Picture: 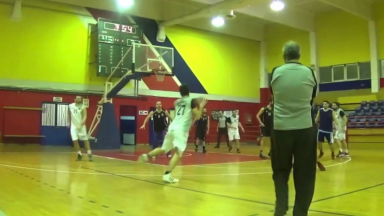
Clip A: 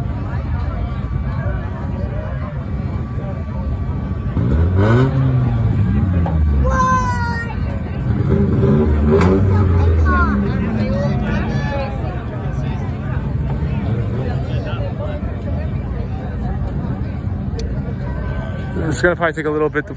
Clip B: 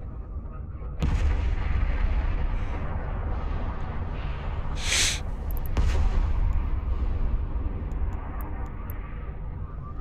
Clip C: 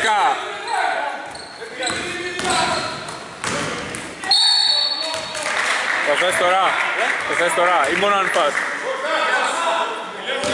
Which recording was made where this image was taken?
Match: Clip C